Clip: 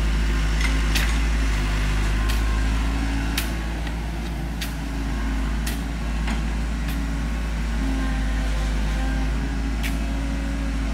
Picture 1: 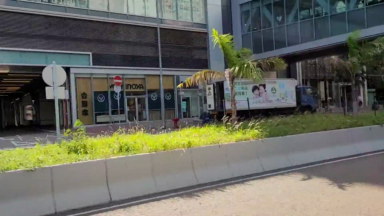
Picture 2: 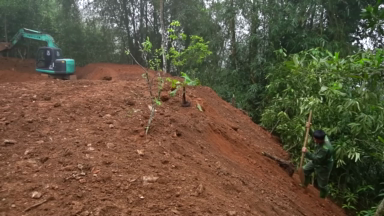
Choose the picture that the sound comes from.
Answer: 2